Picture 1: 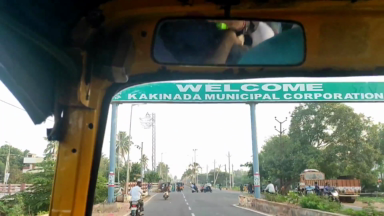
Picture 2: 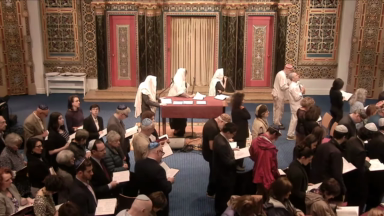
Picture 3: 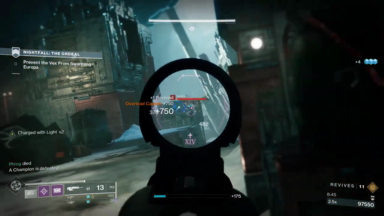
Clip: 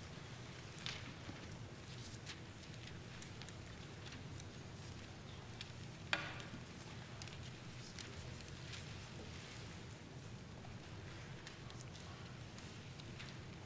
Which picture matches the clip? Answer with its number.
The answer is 2